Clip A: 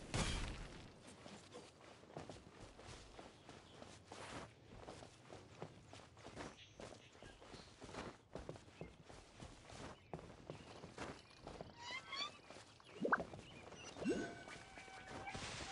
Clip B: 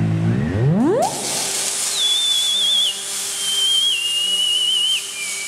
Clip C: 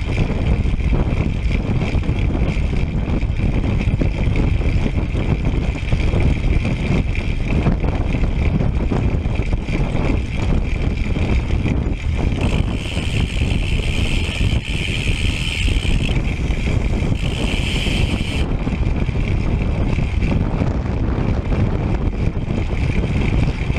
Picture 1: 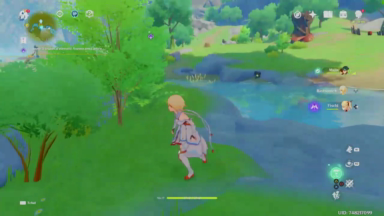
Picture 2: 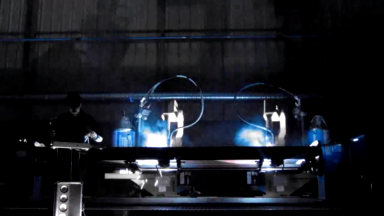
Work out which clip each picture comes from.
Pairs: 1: A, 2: B